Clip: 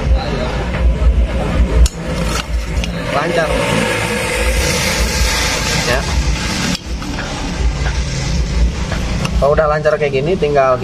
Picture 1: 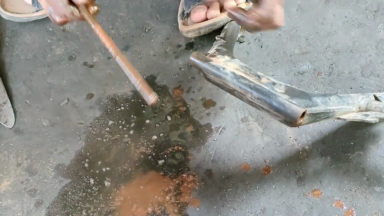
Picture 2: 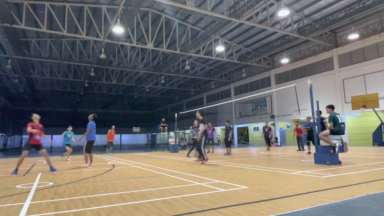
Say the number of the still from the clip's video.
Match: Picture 1